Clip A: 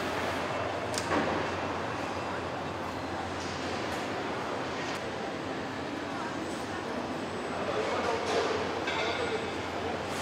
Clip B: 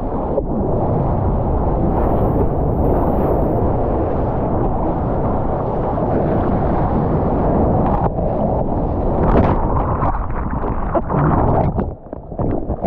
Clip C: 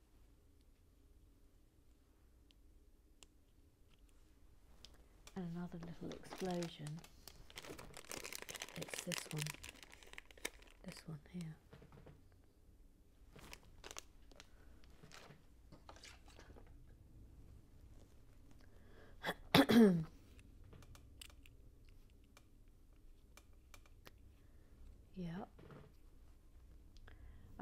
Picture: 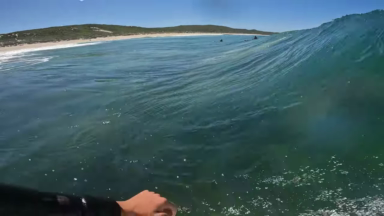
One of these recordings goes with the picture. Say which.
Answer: B